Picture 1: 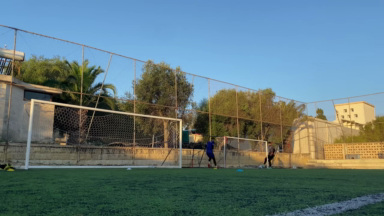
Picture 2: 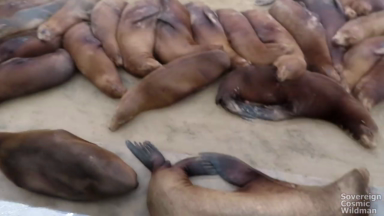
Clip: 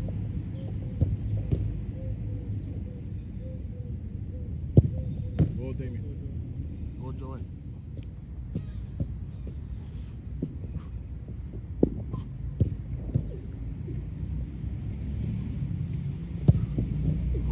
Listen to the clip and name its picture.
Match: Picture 1